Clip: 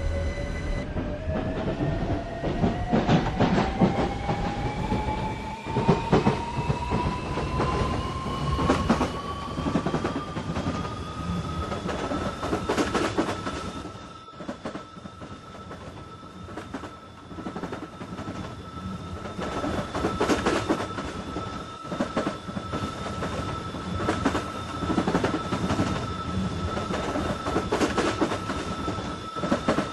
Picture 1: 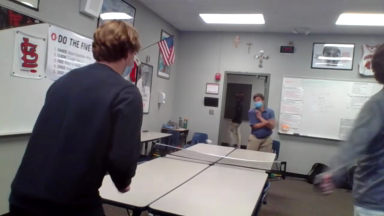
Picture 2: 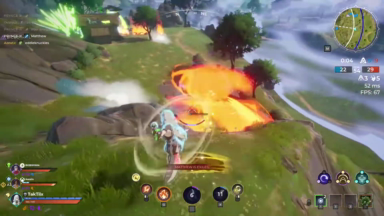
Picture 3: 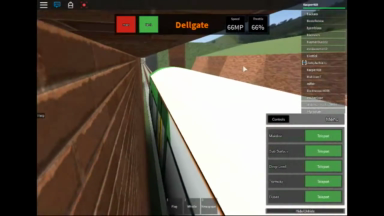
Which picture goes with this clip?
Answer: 3